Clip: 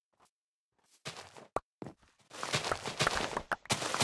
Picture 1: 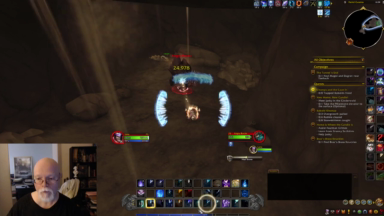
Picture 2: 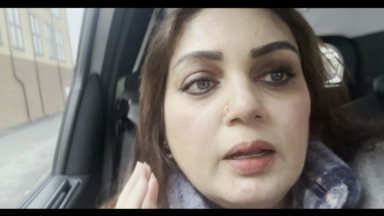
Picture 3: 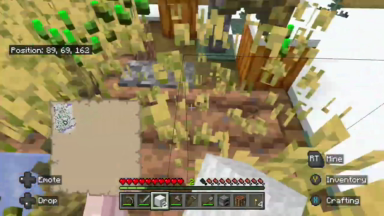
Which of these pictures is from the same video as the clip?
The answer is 3